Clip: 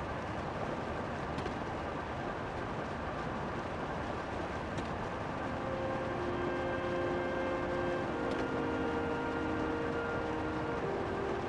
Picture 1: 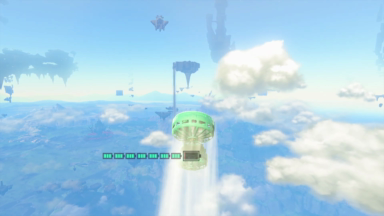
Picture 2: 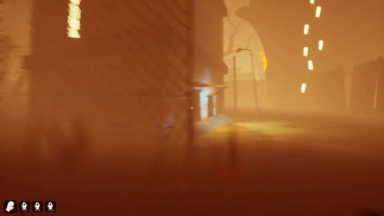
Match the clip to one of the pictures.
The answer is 1